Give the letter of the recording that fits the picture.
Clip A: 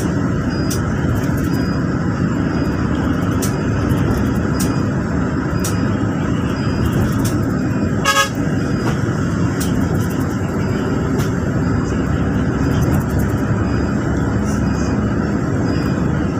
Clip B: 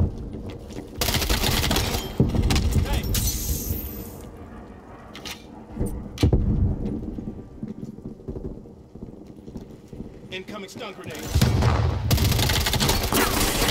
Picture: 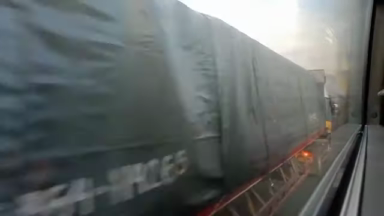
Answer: A